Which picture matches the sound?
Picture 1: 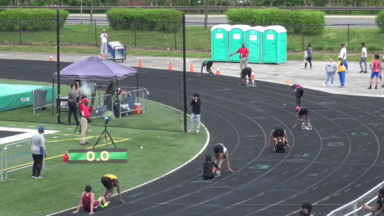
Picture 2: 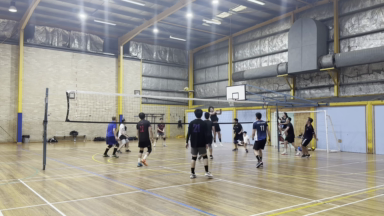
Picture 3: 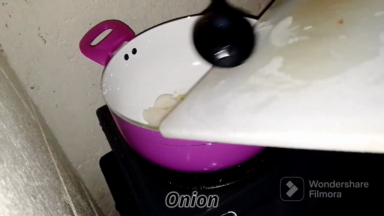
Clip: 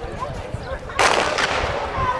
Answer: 1